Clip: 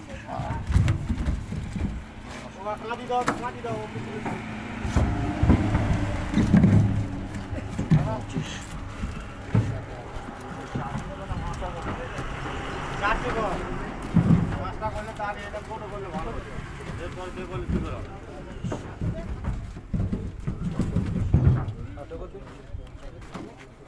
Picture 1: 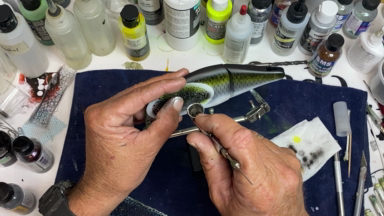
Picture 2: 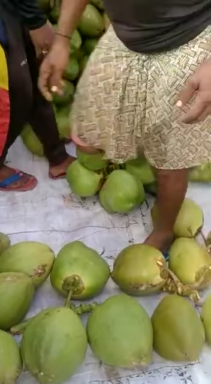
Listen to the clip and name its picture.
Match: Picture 2